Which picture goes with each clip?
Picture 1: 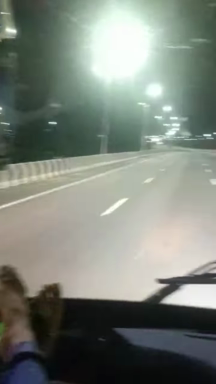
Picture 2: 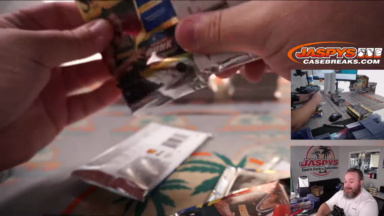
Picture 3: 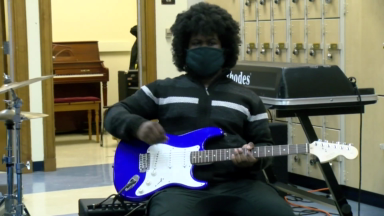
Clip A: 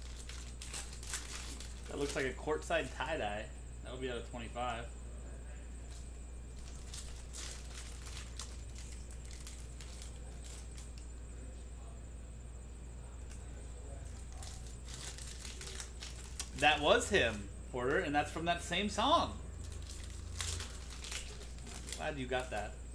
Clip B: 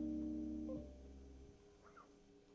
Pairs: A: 2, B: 3